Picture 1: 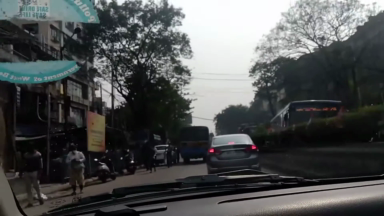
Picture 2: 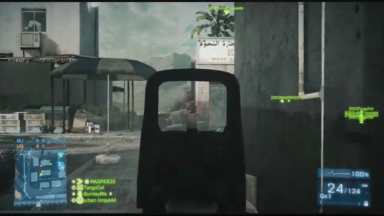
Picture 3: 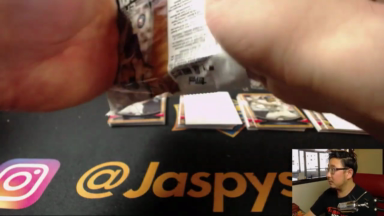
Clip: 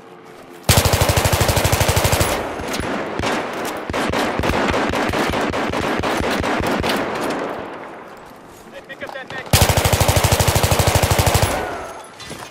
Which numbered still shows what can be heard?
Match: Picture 2